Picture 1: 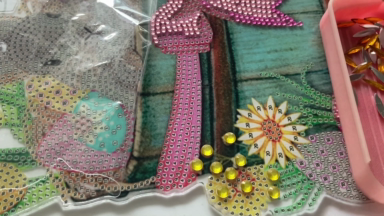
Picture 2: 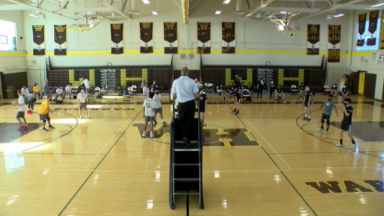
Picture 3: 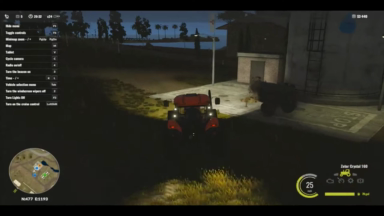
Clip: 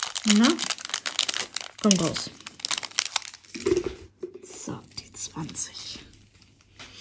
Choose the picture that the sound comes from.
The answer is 1